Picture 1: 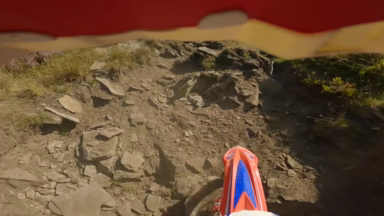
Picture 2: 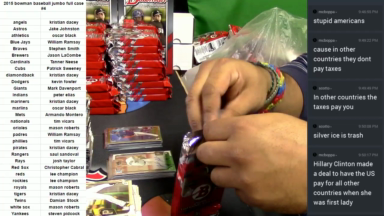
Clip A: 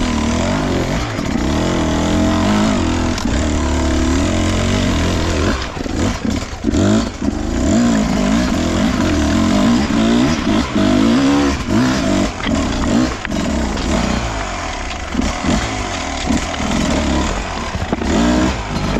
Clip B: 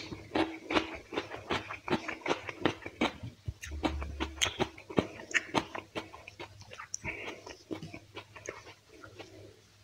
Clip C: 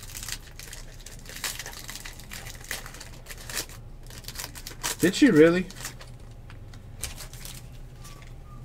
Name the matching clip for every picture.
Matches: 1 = A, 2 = C